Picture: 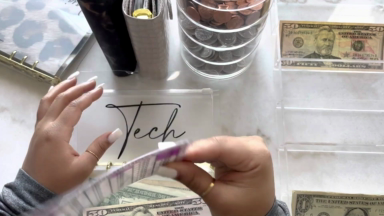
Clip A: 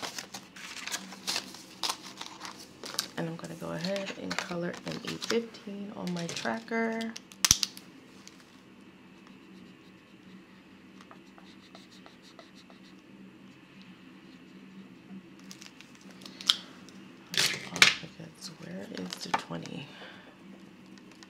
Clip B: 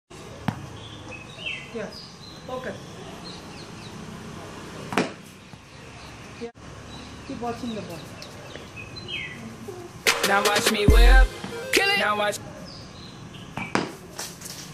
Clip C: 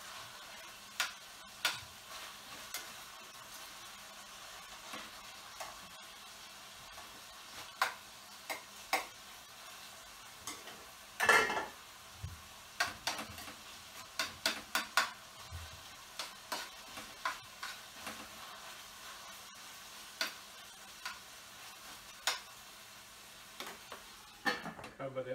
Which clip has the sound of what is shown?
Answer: A